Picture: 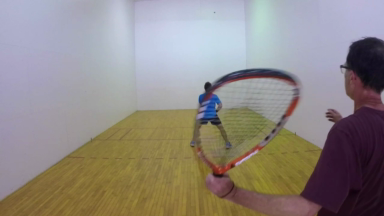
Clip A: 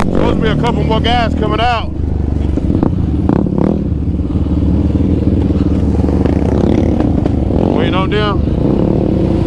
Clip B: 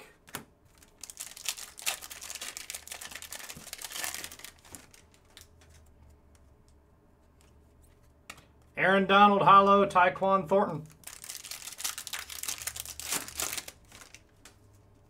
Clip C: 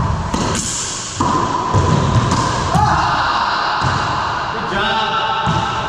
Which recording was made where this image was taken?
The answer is C